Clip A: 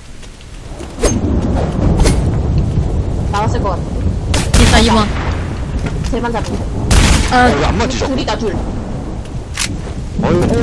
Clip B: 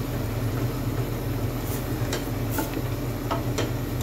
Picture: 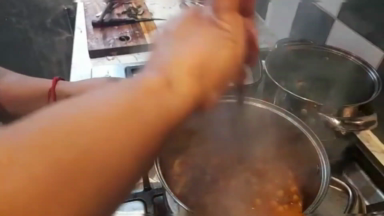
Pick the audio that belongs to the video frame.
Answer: B